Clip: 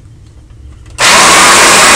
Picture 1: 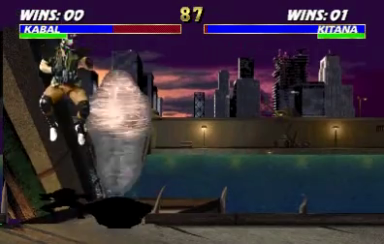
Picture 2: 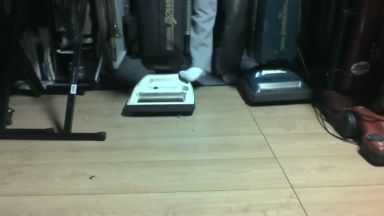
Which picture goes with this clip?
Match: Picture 2